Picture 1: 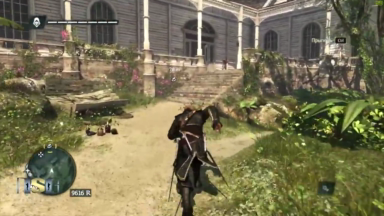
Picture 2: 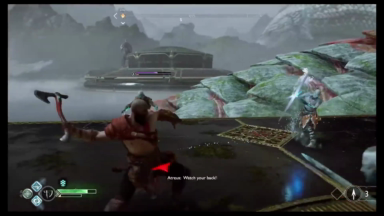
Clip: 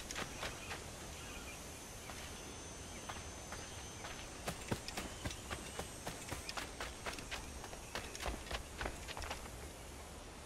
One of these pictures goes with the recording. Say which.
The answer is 1